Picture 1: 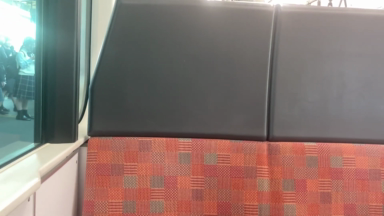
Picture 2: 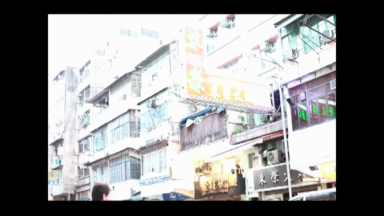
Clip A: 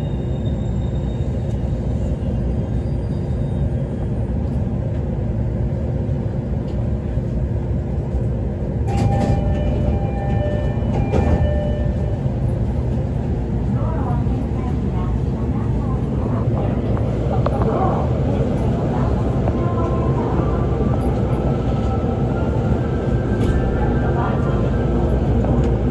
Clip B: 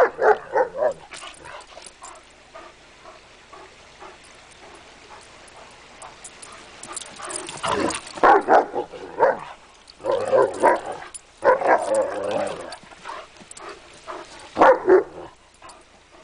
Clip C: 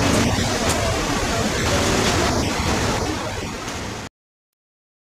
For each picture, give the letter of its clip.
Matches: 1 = A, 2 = C